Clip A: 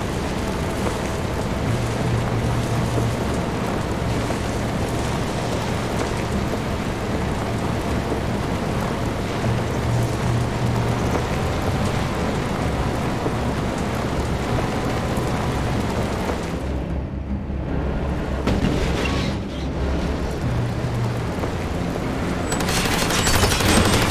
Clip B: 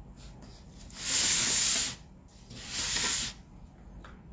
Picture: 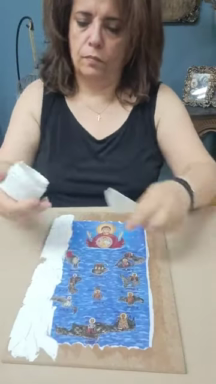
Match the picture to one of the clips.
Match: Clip B